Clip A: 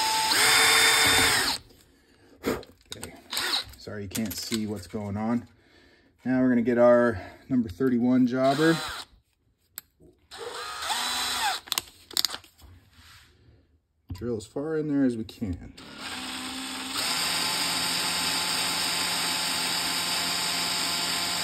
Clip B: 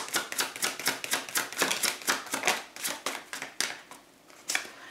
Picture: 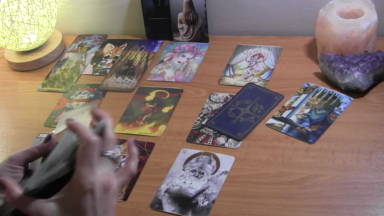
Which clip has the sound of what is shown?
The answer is B